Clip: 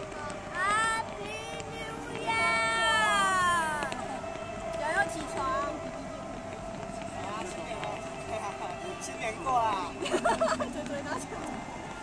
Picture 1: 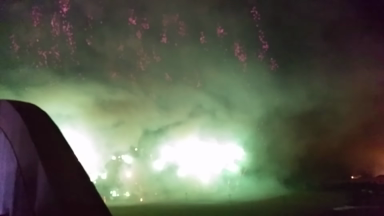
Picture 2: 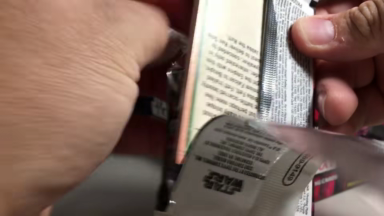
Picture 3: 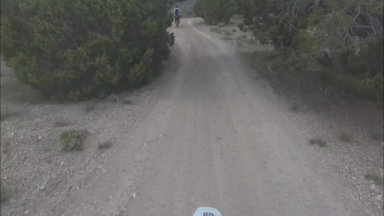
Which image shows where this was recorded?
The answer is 1